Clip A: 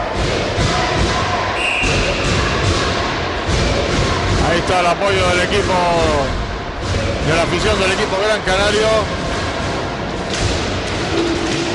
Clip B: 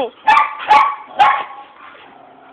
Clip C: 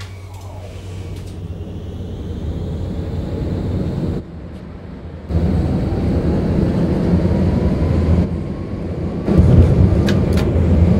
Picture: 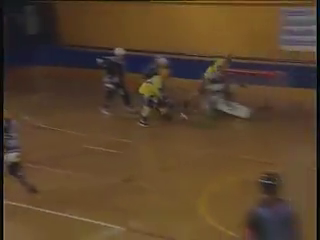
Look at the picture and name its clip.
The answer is A